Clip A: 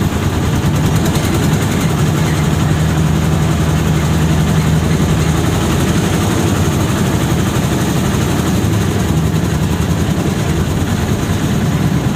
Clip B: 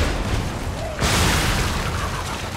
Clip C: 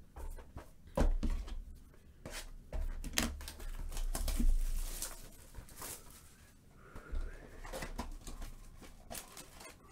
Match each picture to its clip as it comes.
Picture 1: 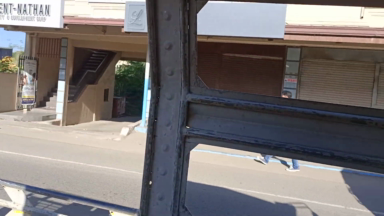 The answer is A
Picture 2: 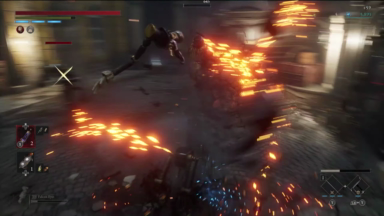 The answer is B